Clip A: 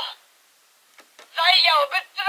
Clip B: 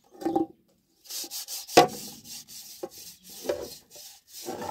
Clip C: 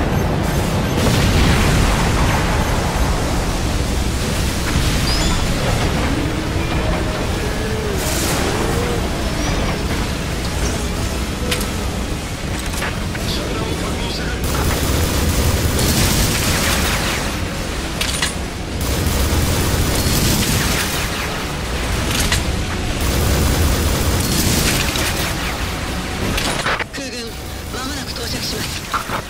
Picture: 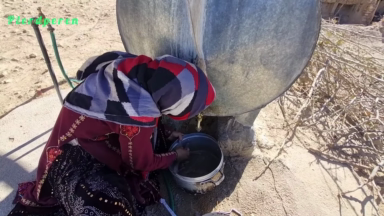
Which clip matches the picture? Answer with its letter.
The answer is B